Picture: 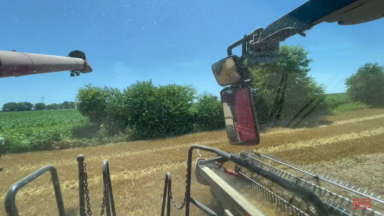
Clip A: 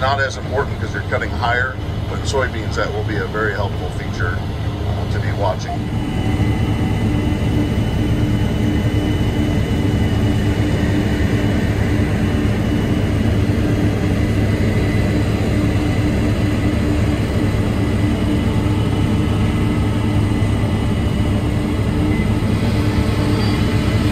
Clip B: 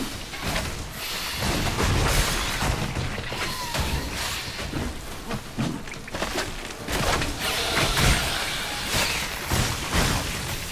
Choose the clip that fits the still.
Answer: A